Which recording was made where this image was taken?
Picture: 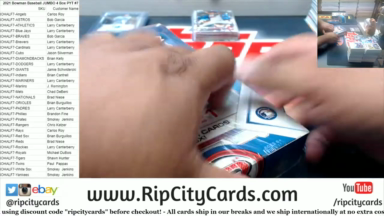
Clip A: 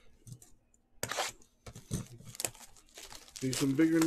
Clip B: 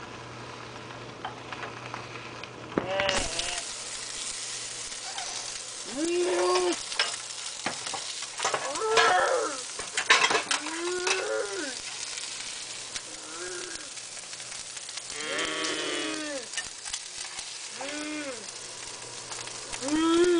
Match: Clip A